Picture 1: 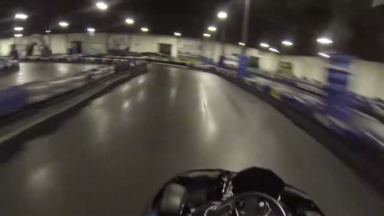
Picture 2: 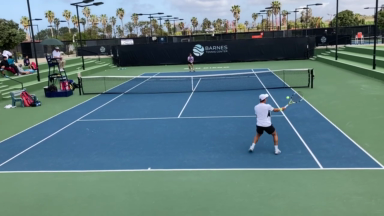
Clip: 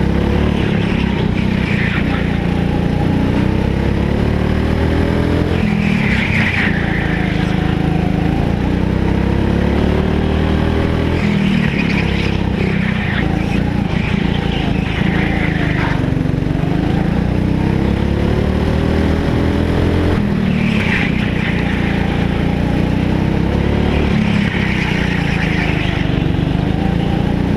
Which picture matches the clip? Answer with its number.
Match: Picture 1